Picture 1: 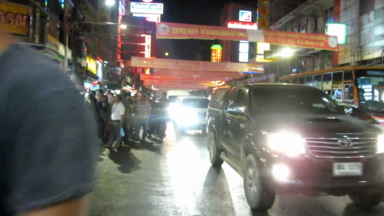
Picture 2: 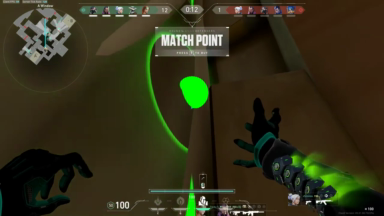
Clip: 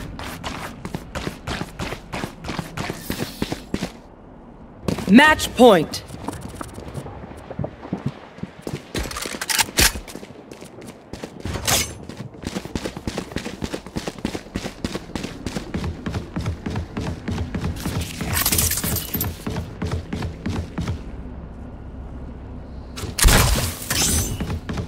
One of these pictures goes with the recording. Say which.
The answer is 2